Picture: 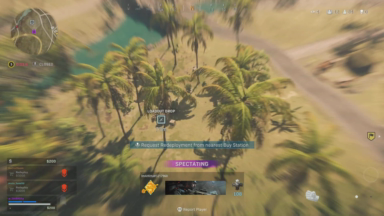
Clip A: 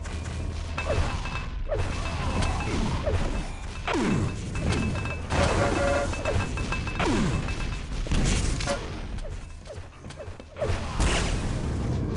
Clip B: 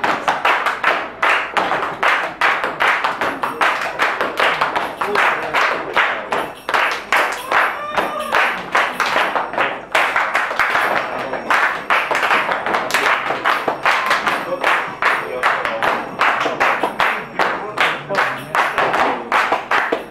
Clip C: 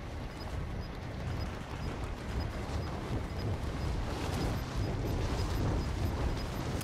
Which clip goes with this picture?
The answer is C